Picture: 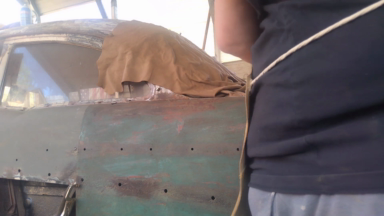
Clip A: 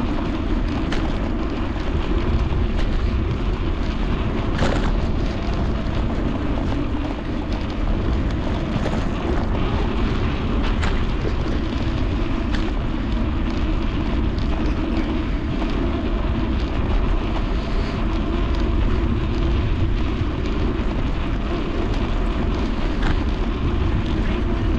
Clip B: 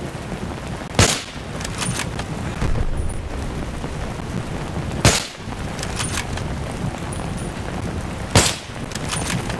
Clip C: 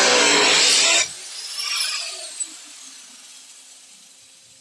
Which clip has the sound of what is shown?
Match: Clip C